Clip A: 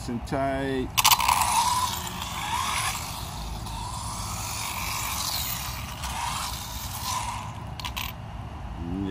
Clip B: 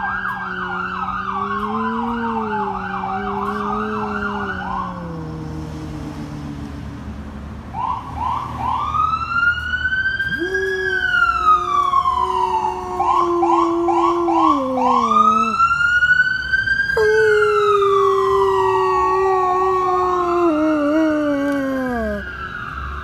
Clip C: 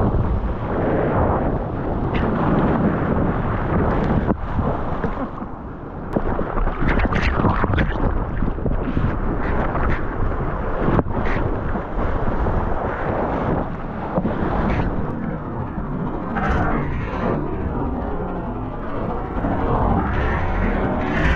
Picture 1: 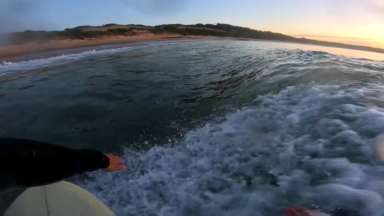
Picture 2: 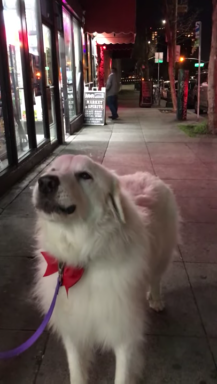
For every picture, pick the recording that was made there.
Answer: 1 C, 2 B